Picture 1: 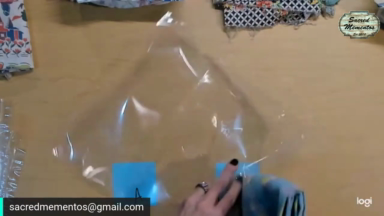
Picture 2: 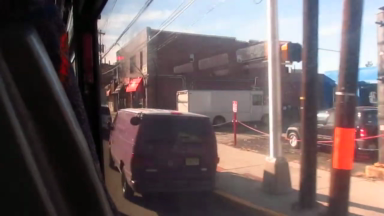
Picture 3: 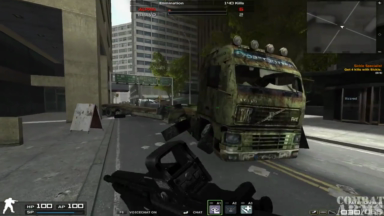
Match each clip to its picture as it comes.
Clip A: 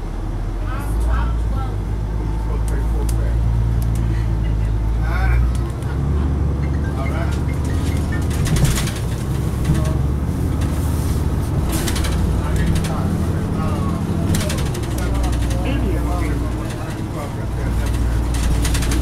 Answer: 2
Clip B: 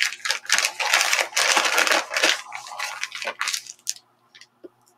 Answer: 1